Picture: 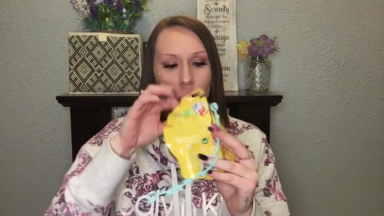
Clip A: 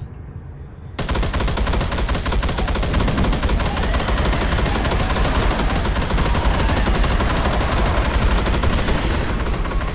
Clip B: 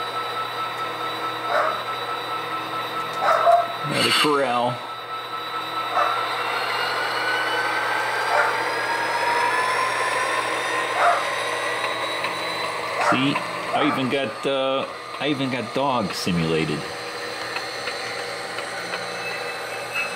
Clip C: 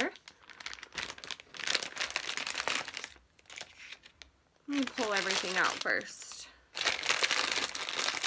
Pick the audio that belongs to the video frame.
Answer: C